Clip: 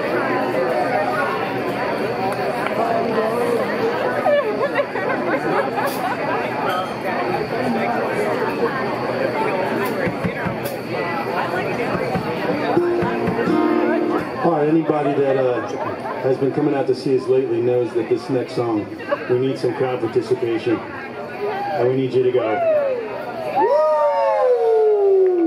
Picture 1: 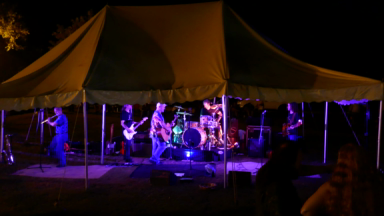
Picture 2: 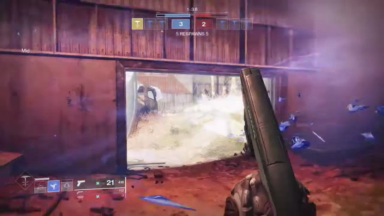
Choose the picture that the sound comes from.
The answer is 1